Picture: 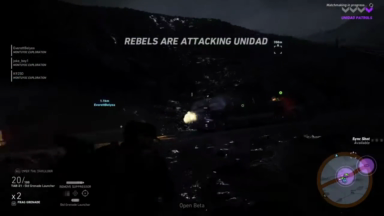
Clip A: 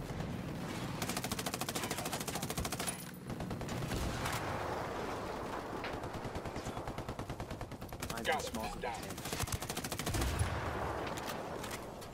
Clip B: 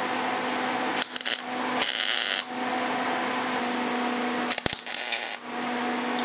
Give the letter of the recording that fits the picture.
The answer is A